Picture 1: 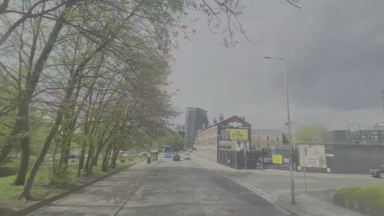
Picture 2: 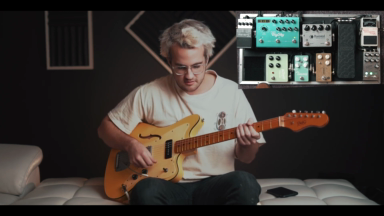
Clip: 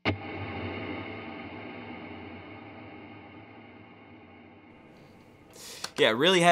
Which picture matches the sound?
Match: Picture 2